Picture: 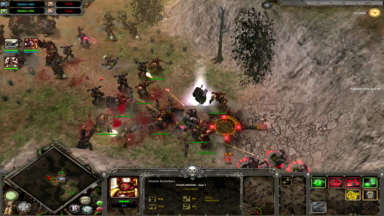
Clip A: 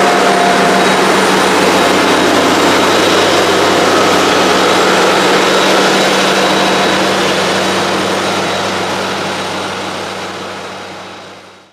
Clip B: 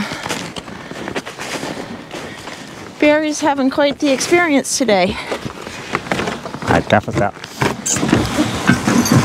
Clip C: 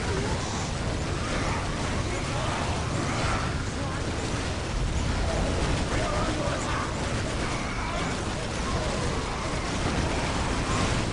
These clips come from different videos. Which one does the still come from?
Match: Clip C